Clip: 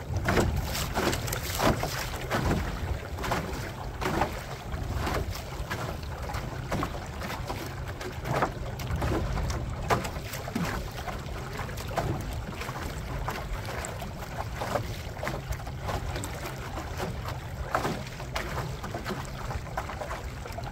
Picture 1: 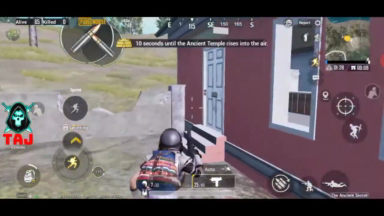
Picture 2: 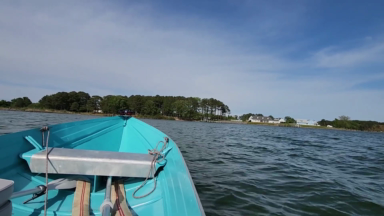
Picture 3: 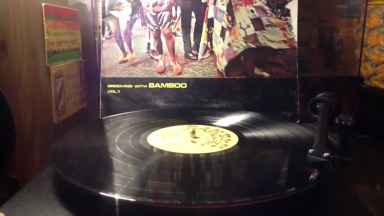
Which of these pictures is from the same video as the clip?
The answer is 2